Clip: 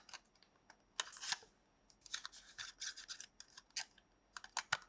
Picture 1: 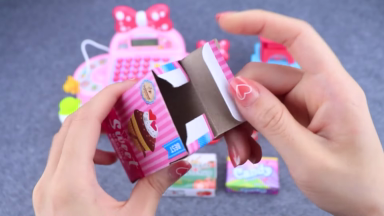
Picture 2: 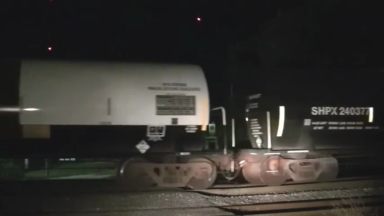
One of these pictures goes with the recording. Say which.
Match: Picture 1